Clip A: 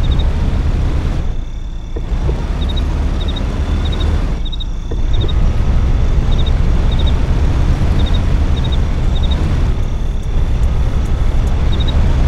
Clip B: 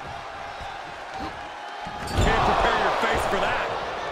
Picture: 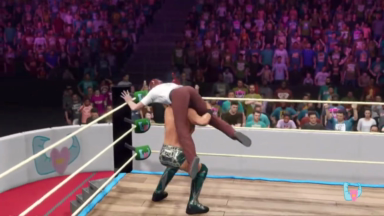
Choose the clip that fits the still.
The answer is B